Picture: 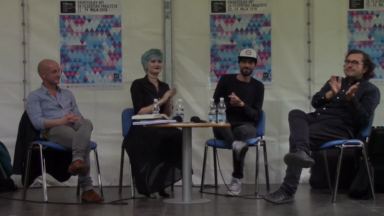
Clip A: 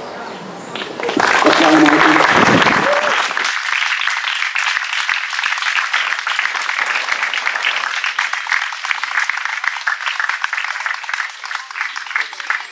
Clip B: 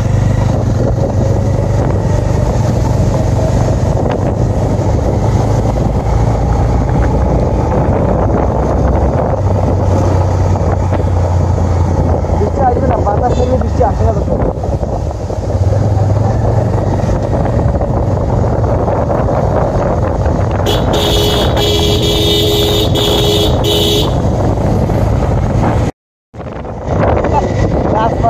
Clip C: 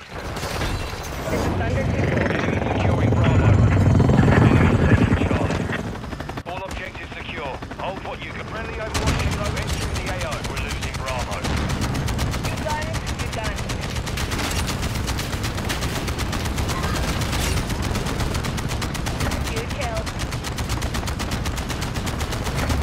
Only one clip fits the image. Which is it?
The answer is A